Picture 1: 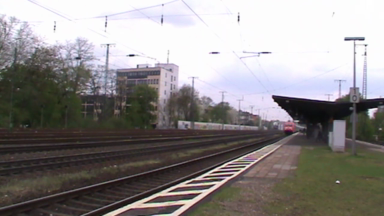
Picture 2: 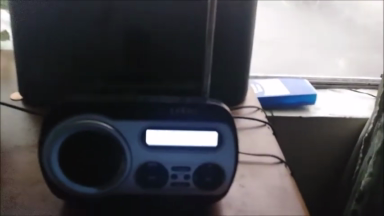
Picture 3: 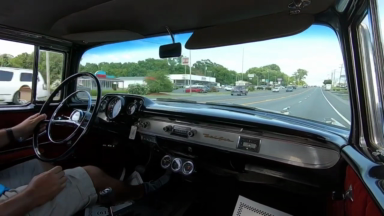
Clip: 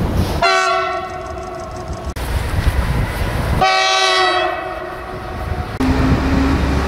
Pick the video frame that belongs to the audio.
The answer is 1